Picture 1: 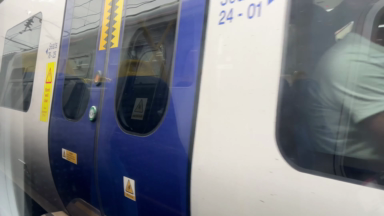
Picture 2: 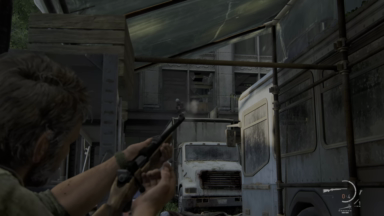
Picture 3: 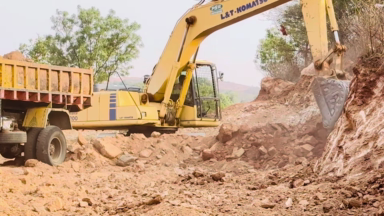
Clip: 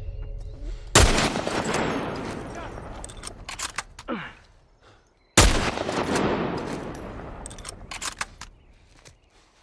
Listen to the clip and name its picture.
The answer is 2